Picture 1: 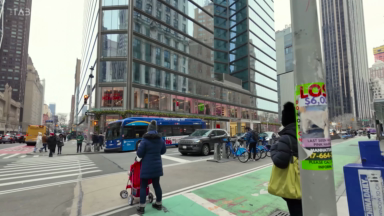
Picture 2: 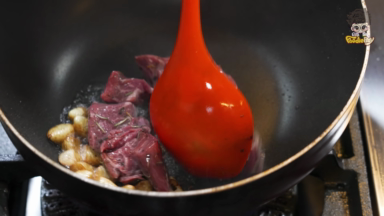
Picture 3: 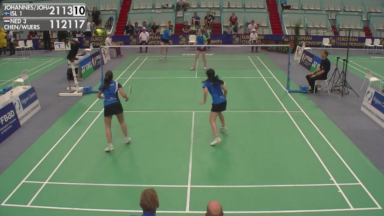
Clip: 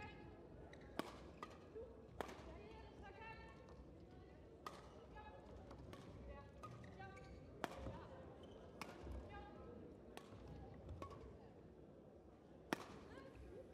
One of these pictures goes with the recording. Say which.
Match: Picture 3